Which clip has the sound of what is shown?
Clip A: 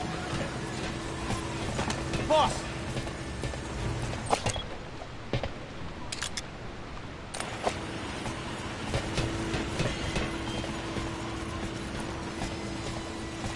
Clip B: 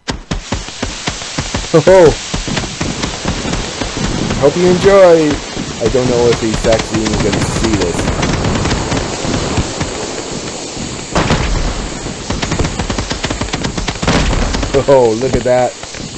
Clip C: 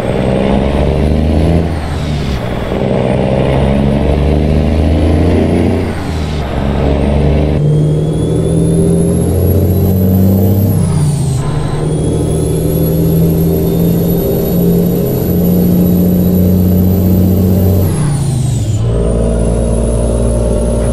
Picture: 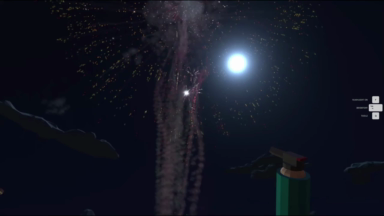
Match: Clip B